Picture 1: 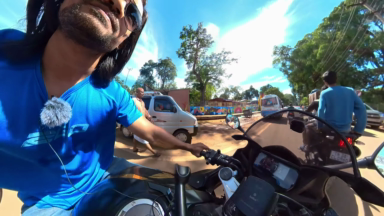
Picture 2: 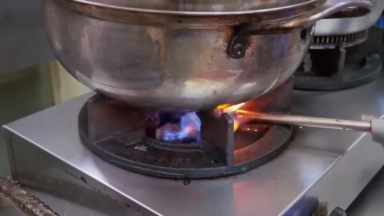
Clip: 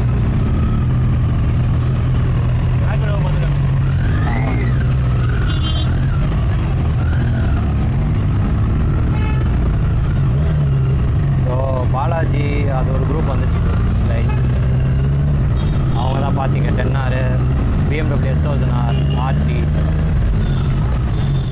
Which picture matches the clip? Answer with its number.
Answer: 1